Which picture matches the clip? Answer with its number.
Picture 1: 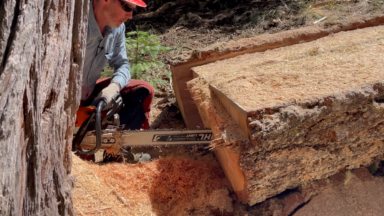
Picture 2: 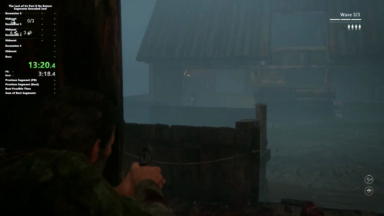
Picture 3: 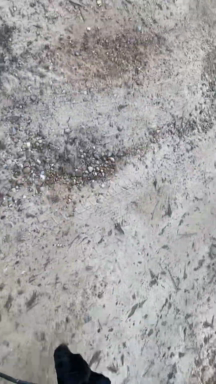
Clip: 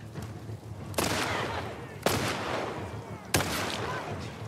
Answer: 2